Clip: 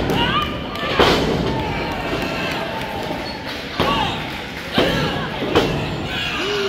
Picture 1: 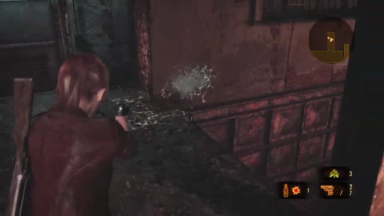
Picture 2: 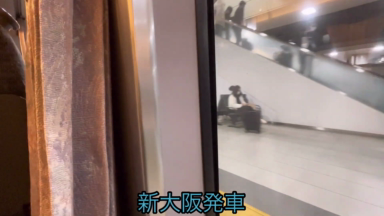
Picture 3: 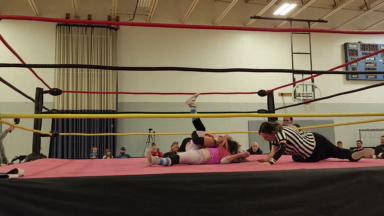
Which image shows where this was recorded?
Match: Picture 3